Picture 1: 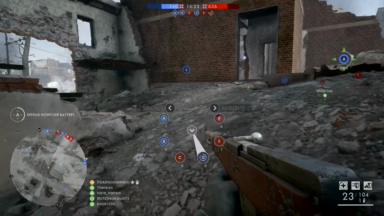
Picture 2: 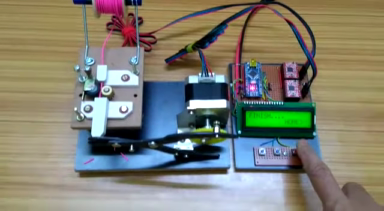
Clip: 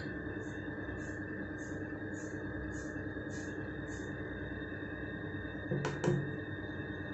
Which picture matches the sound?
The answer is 2